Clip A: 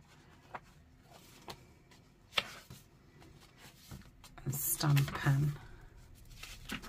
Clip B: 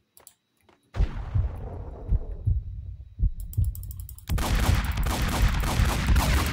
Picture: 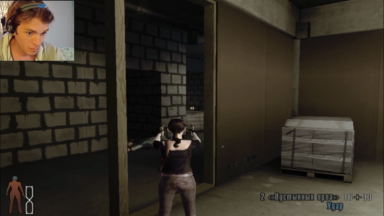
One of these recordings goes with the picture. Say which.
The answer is B